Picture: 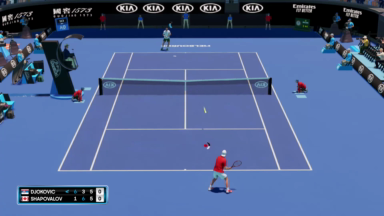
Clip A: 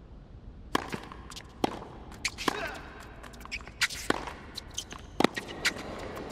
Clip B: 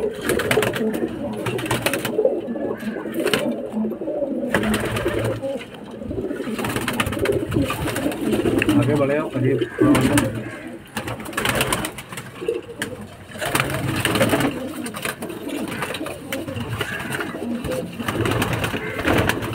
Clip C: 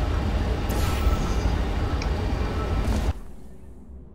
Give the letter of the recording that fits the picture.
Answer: A